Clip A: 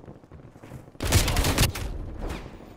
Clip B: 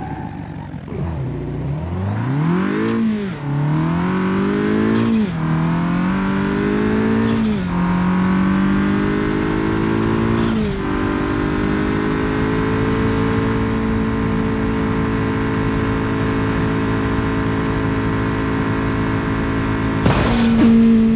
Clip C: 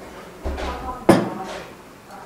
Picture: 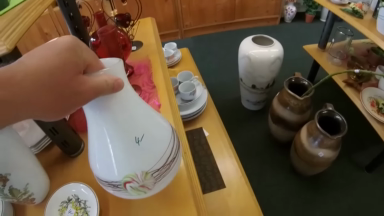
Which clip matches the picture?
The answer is C